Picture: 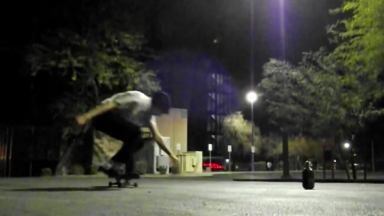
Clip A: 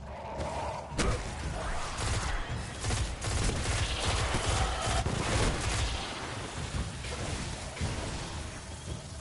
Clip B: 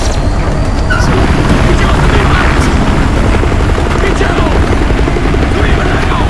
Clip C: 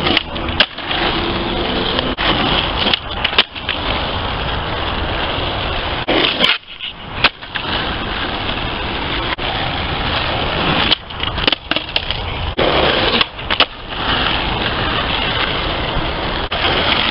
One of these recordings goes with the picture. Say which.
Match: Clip C